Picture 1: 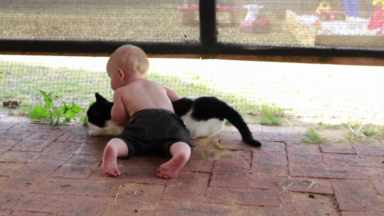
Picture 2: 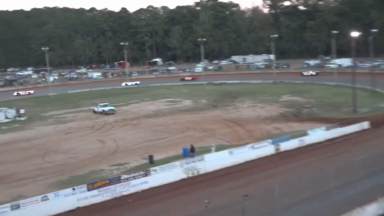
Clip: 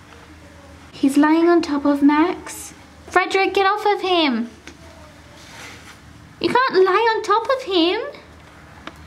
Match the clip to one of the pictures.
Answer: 1